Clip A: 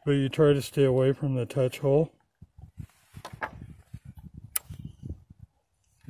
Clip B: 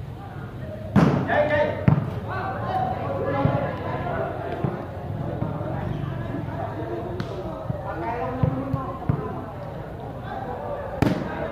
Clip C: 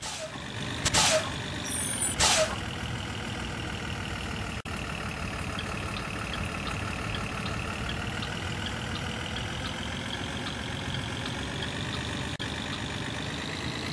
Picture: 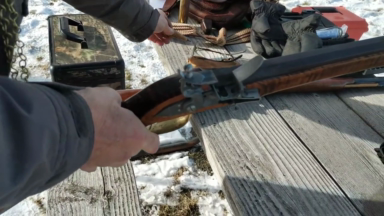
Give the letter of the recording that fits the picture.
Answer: A